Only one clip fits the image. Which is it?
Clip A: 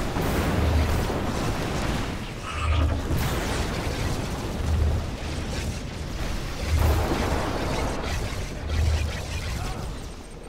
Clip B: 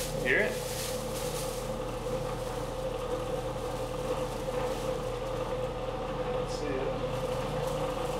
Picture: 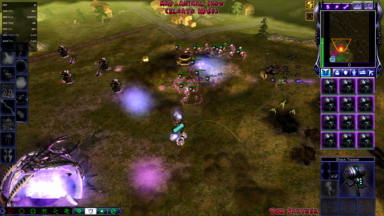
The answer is A